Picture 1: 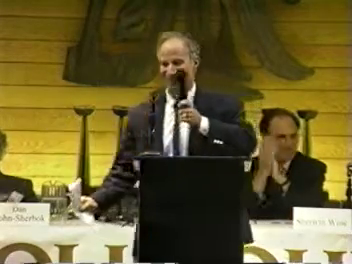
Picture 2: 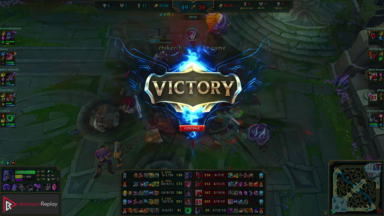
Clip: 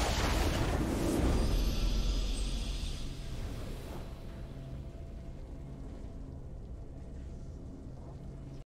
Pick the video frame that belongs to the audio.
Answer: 2